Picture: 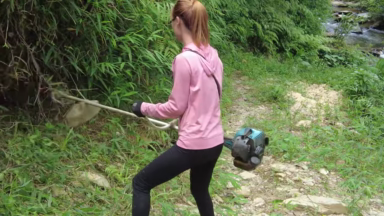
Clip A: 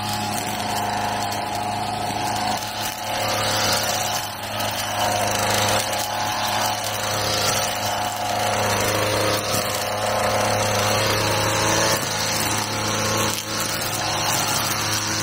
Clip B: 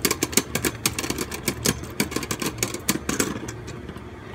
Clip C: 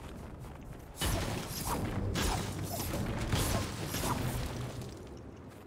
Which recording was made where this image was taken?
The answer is A